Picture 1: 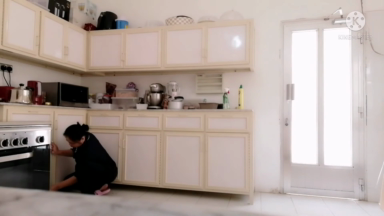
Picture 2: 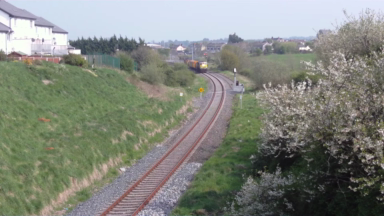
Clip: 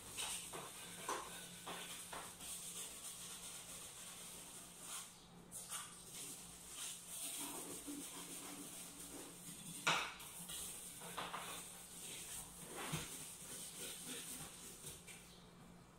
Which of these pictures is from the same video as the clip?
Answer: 1